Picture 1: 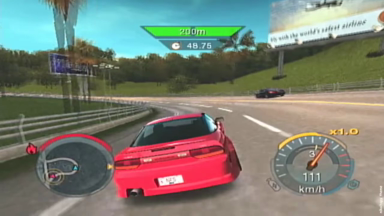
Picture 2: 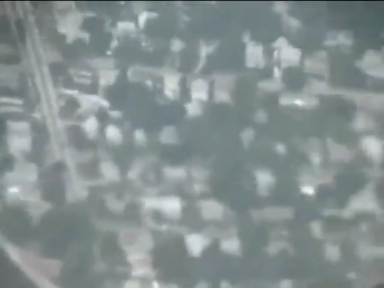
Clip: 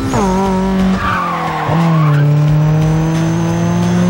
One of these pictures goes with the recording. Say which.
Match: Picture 1